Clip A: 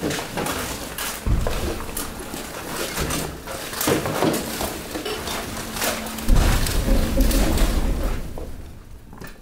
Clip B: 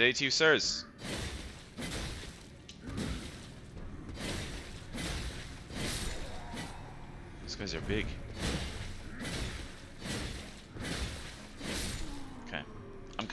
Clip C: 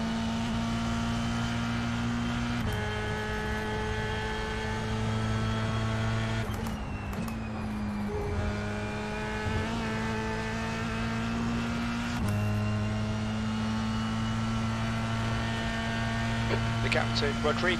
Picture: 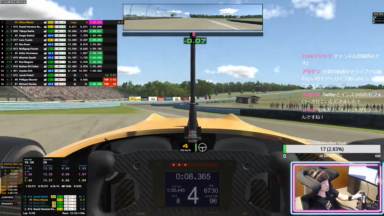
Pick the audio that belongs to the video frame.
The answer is C